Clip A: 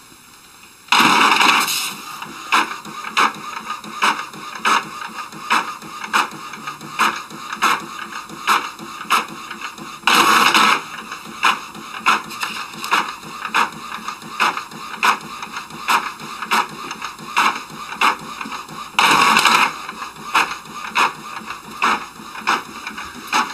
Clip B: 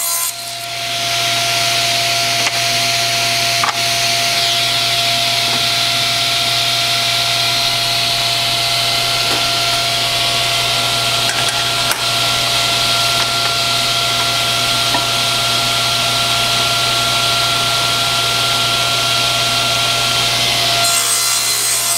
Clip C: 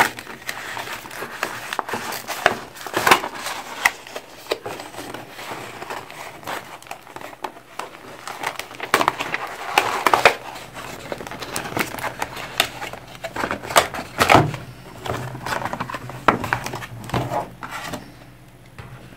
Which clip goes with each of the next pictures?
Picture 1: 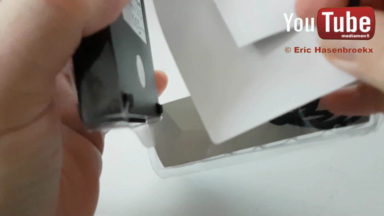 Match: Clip C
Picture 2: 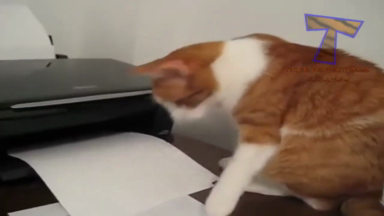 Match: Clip A